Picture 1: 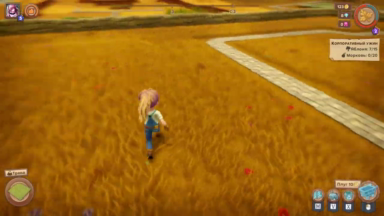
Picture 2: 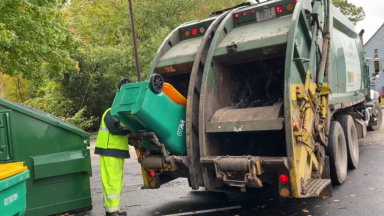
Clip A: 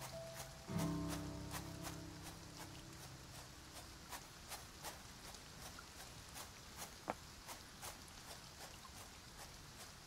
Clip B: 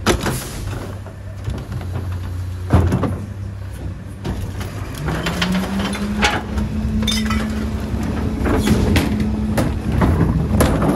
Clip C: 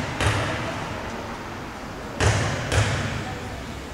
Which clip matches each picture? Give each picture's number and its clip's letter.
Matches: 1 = A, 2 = B